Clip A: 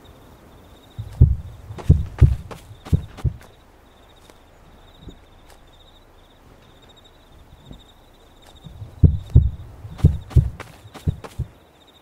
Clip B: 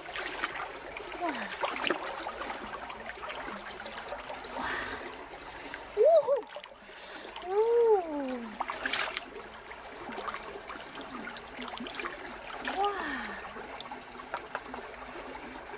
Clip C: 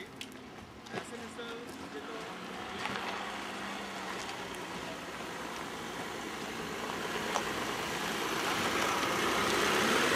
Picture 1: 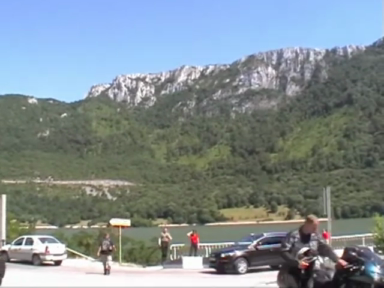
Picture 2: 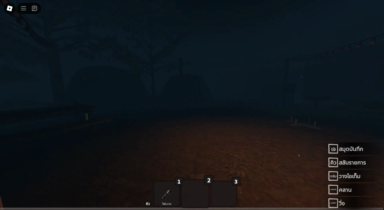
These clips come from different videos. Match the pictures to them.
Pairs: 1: C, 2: A